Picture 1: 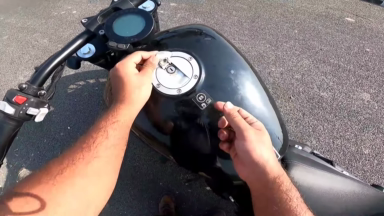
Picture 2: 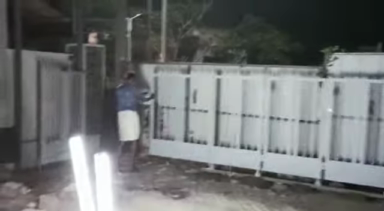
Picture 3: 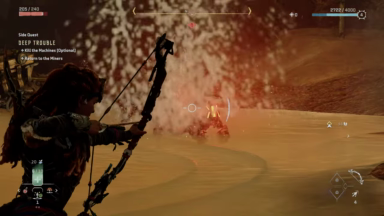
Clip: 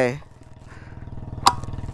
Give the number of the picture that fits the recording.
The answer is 1